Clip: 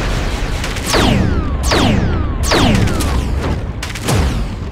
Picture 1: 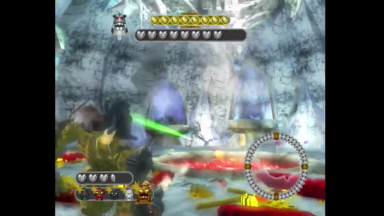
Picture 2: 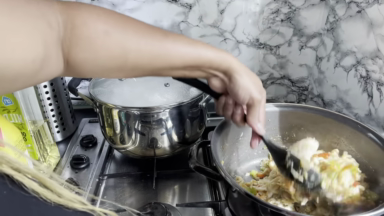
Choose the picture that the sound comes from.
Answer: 1